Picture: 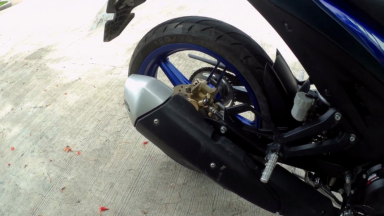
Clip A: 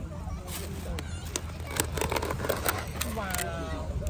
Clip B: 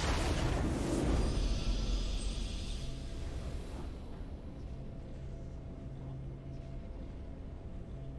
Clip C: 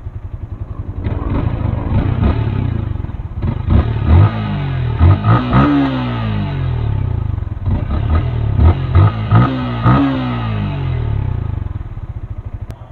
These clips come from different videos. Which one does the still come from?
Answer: C